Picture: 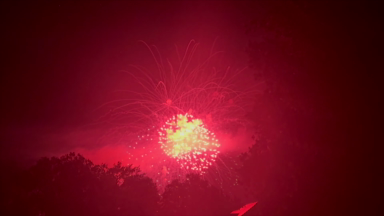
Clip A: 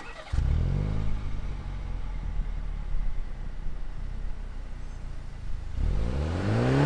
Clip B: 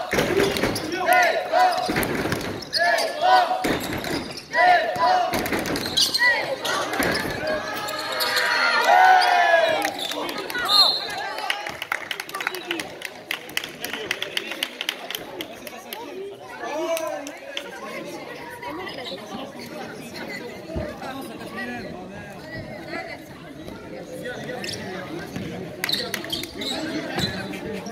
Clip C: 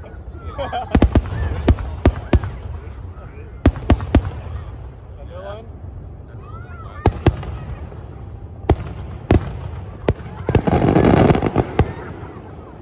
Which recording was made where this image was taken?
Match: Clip C